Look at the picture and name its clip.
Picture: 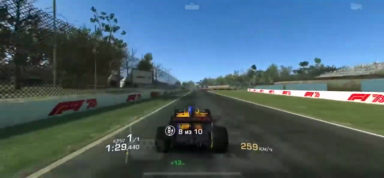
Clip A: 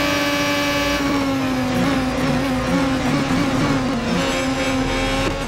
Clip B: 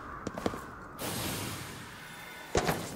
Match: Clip A